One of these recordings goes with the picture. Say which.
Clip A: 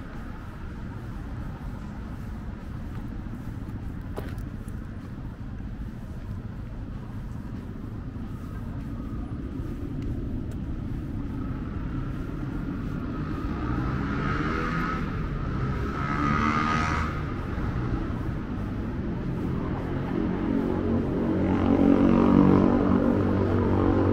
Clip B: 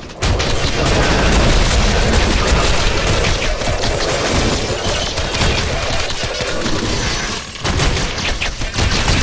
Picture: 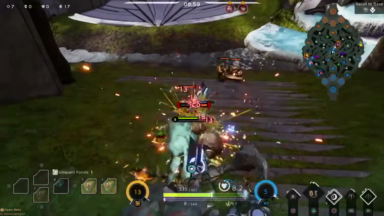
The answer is B